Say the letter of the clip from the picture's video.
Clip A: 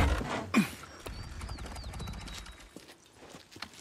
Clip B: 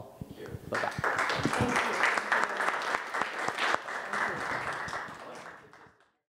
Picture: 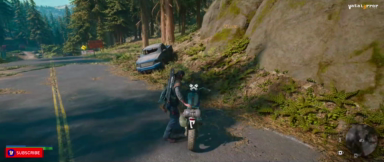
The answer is A